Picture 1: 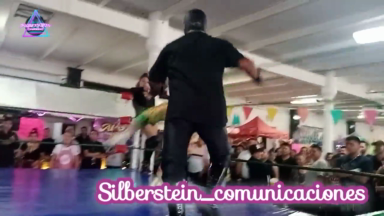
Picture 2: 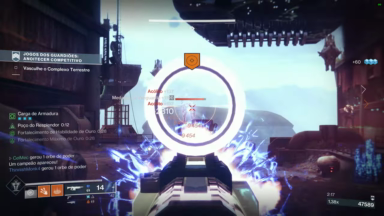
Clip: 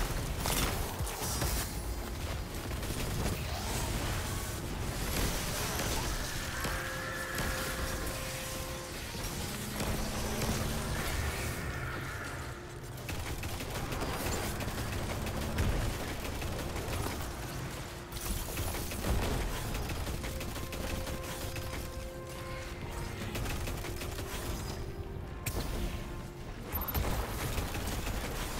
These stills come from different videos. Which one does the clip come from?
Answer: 2